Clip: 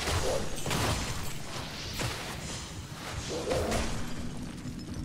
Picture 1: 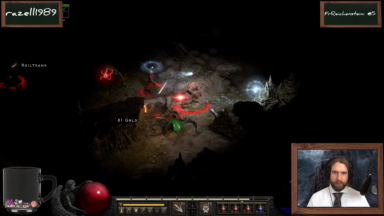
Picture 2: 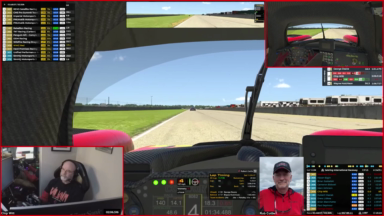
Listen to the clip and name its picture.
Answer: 1